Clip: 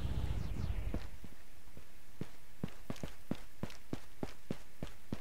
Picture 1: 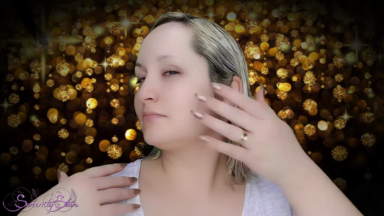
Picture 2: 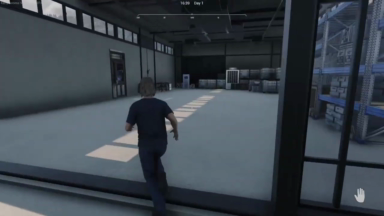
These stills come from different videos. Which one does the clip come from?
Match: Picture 2